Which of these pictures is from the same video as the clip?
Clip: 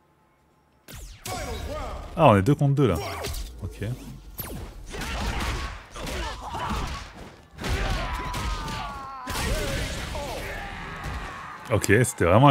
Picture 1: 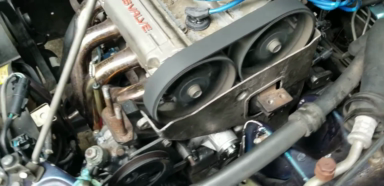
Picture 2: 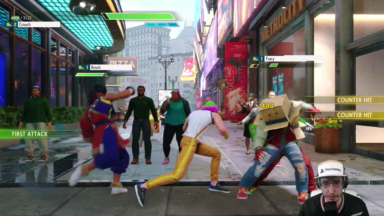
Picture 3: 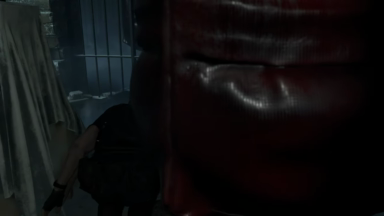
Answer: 2